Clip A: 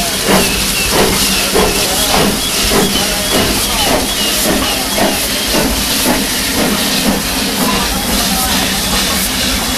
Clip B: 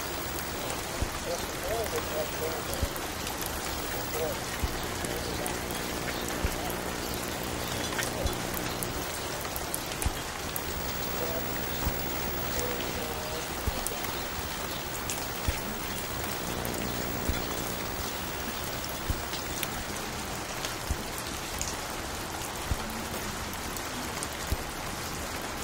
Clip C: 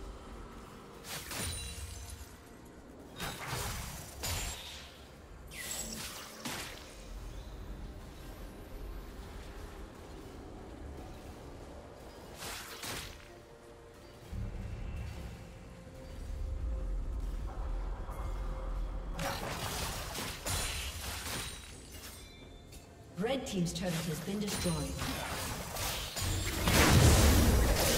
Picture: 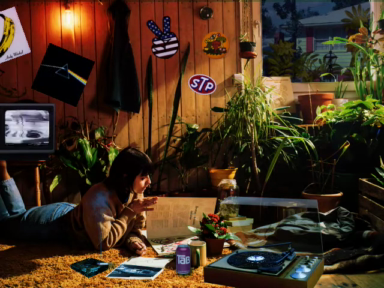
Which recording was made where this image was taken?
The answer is B